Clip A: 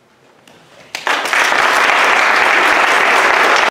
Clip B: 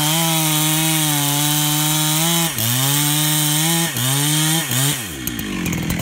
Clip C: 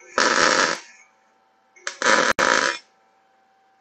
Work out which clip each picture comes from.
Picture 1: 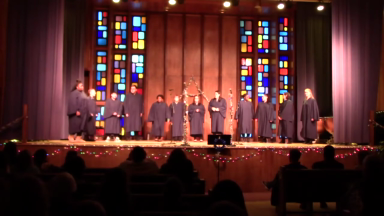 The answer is A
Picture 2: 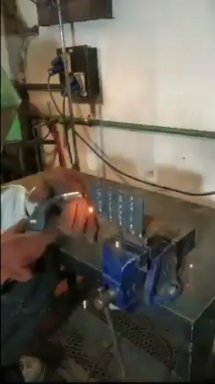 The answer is C